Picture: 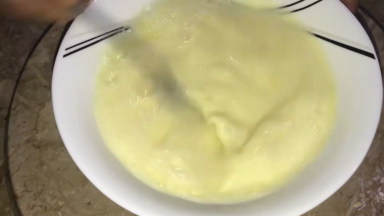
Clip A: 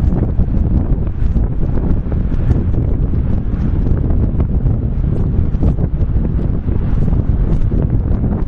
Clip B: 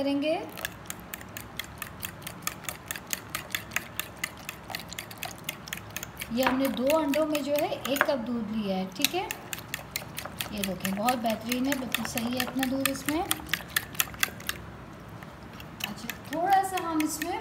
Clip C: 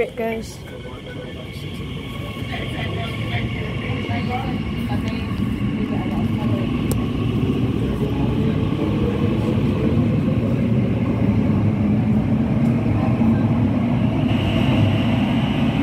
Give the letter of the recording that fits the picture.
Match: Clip B